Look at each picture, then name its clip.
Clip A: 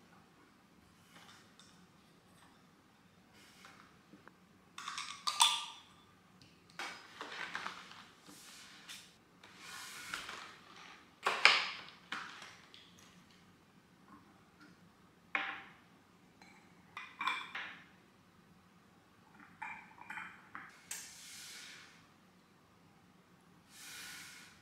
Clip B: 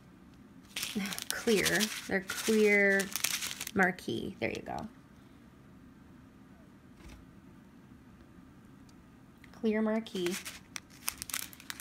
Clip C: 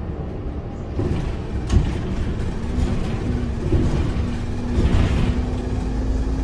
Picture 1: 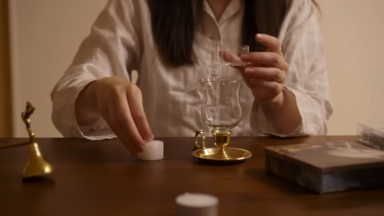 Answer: A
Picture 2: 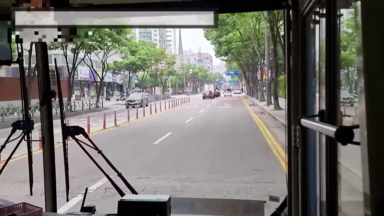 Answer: C